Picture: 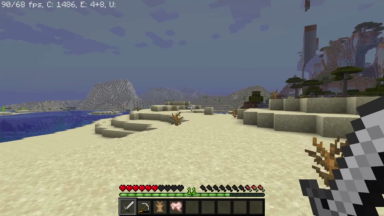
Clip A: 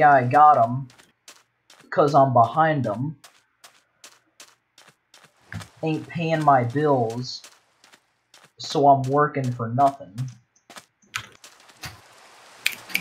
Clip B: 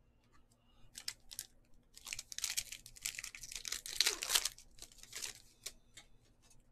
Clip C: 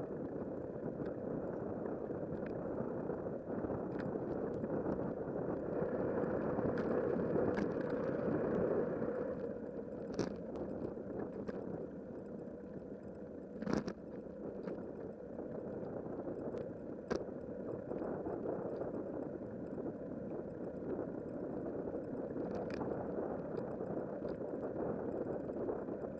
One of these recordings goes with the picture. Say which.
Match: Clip A